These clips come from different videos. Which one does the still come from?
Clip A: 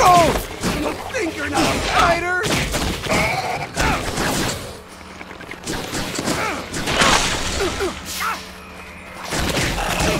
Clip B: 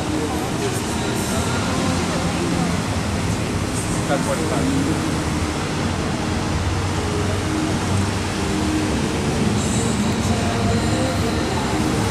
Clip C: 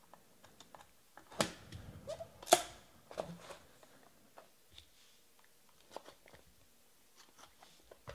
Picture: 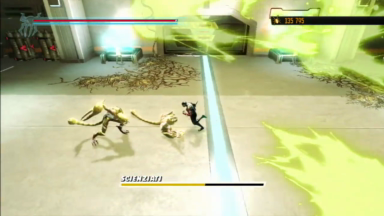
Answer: A